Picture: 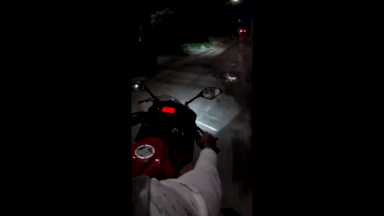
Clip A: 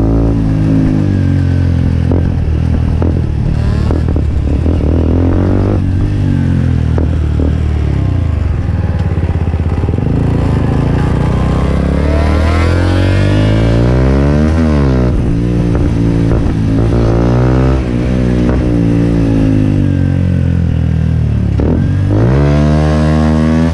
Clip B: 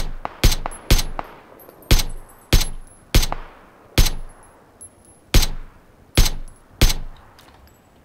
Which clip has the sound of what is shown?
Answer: A